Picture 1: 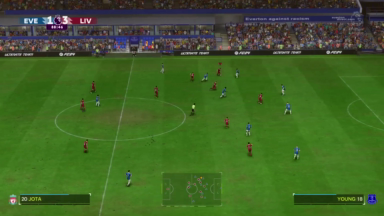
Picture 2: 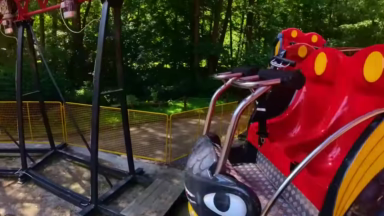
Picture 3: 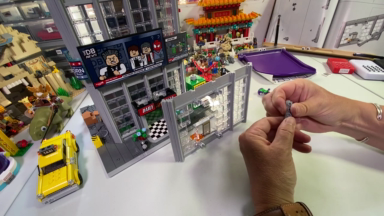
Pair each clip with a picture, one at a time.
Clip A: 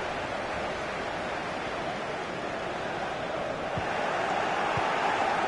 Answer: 1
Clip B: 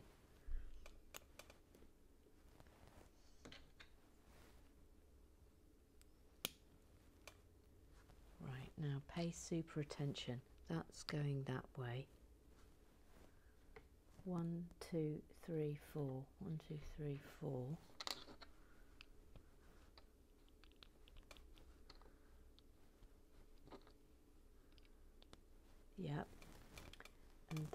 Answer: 3